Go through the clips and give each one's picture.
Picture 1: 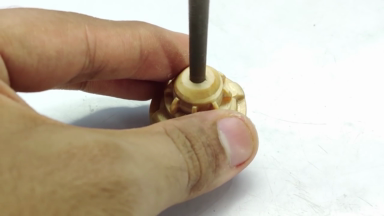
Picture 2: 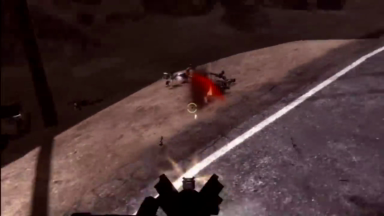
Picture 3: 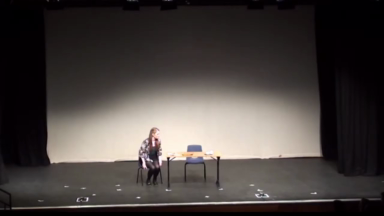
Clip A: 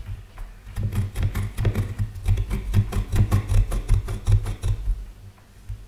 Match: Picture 1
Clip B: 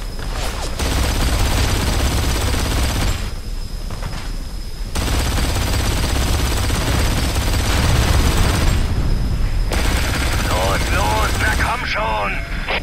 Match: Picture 2